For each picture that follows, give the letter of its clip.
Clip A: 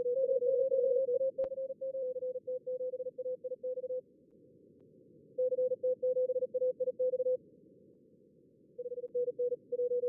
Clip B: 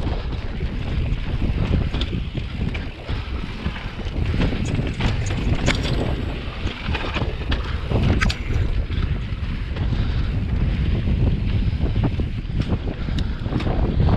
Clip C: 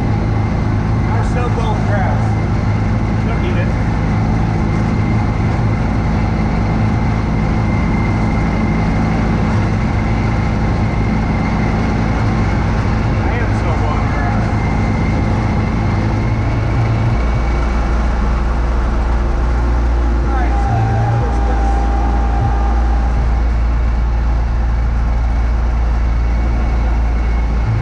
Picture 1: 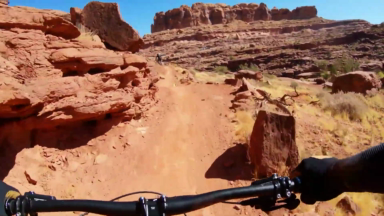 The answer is B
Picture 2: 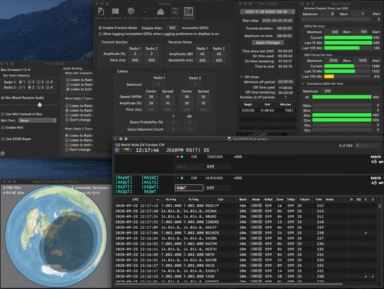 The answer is A